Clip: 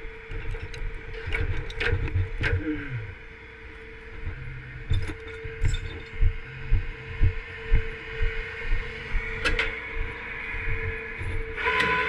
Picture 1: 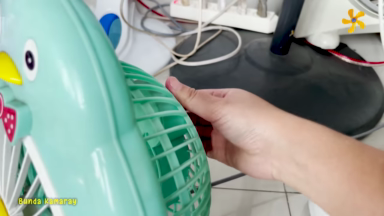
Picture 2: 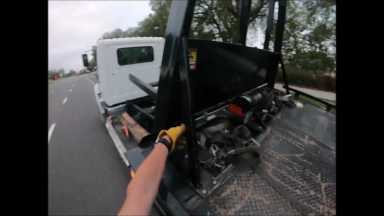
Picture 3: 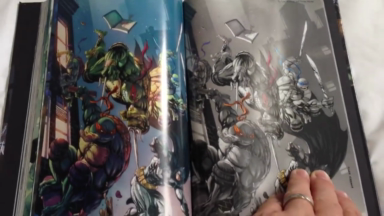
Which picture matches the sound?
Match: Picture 2